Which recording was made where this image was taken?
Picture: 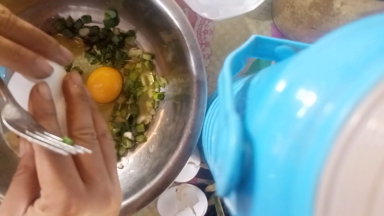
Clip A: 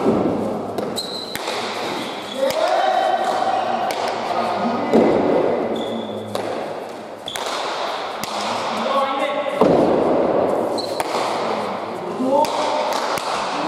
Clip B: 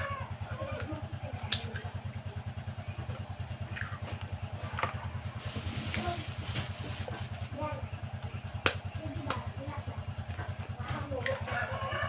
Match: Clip B